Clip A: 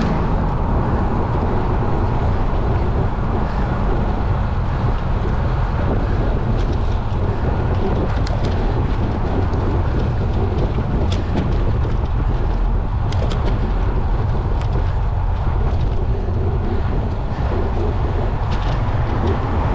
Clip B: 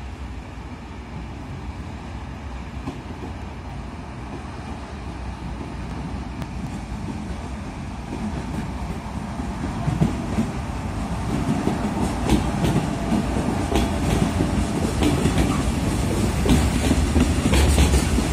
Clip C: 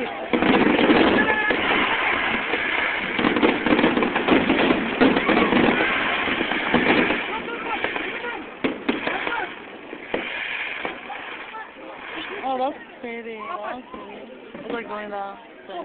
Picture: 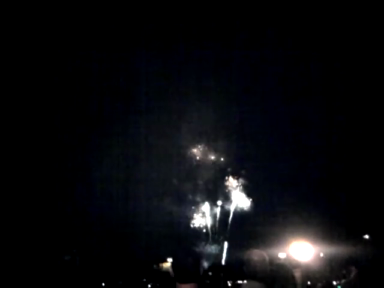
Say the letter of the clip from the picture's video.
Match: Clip C